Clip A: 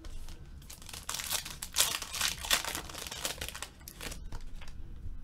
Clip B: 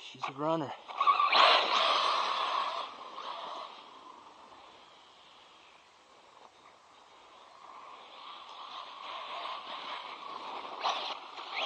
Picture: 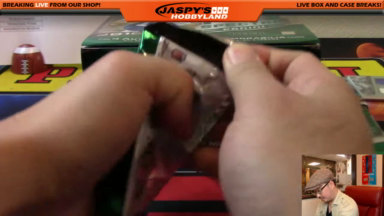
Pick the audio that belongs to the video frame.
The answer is A